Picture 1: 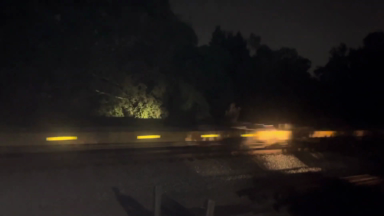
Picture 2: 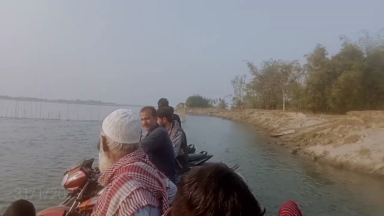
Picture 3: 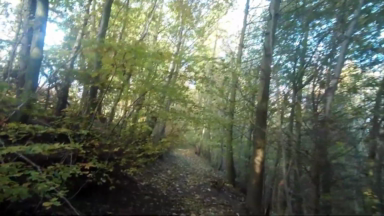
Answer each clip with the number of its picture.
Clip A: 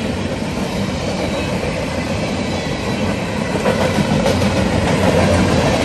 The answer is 1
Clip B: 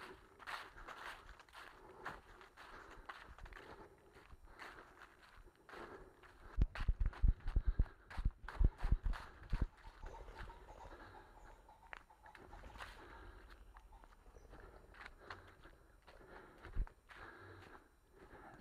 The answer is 3